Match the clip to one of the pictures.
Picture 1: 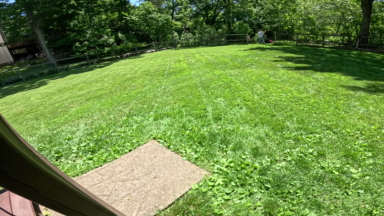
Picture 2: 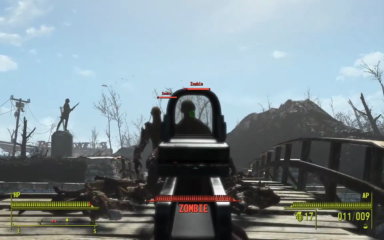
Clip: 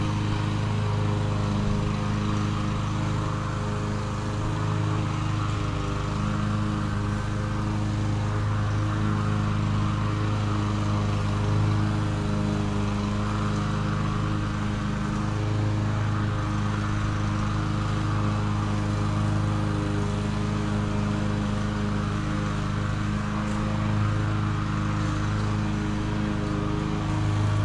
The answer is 1